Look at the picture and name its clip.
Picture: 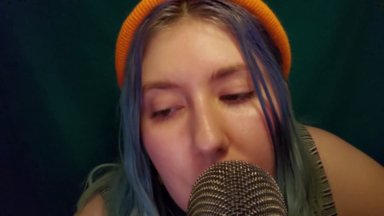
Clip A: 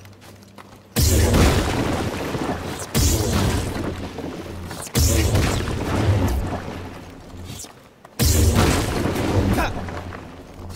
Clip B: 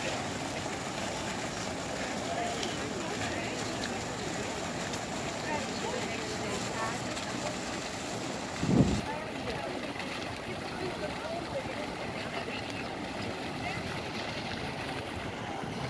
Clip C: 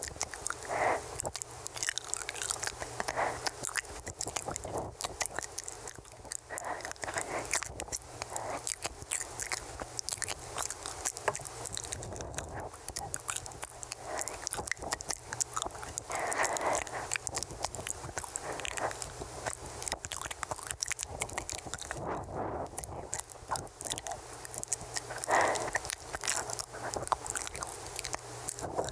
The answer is C